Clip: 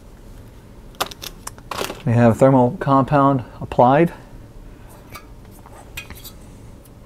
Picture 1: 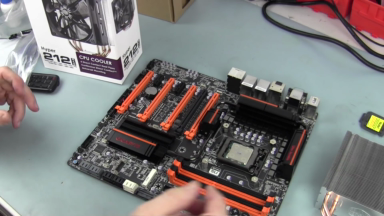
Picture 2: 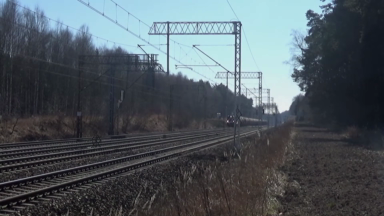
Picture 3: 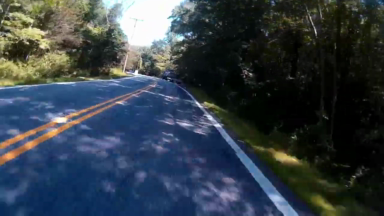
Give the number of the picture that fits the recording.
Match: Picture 1